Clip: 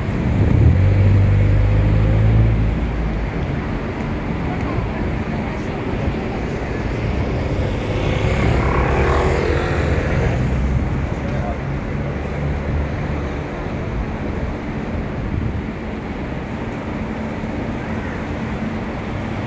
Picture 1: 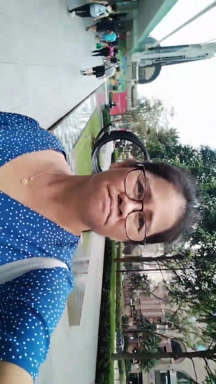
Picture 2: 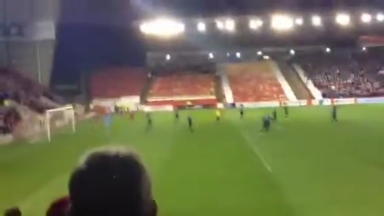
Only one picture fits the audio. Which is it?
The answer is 1